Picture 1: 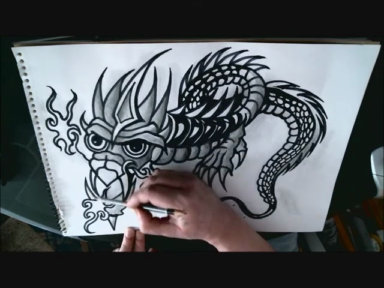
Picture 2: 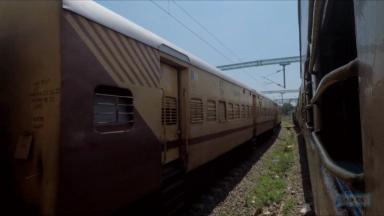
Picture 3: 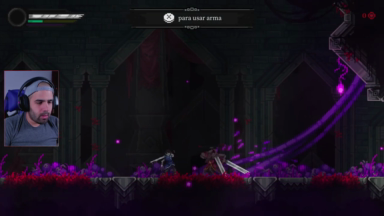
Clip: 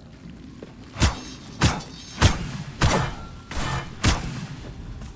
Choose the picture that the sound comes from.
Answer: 3